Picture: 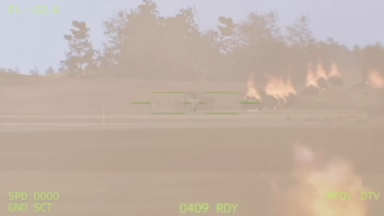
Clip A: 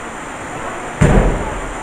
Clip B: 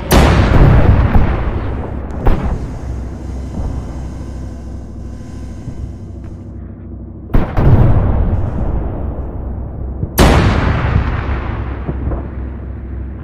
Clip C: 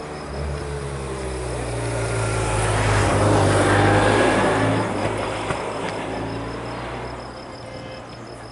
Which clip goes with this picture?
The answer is B